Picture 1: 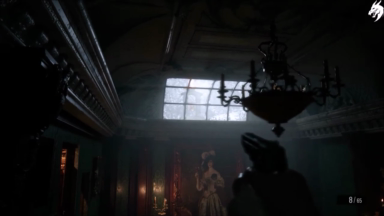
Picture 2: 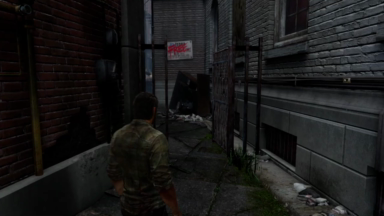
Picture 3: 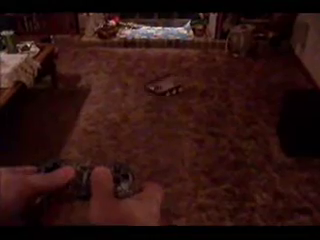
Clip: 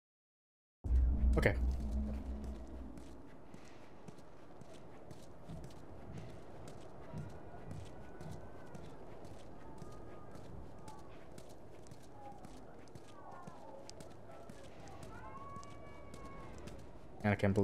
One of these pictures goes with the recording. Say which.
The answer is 2